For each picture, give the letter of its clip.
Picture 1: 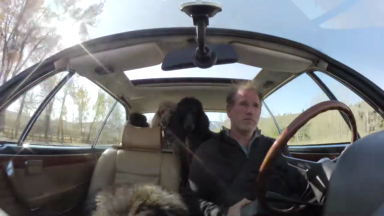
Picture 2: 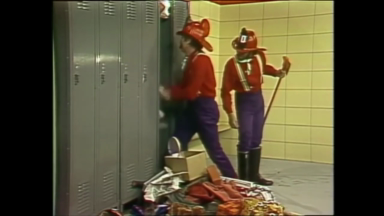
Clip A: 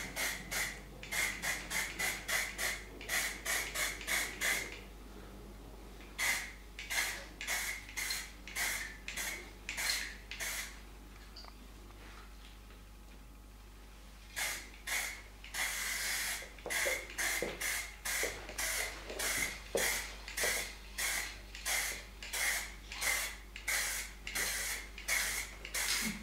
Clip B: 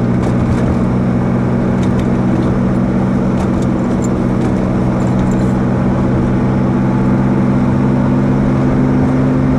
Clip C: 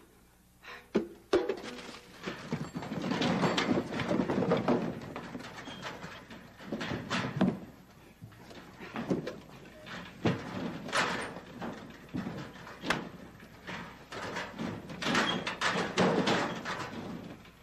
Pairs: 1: B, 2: C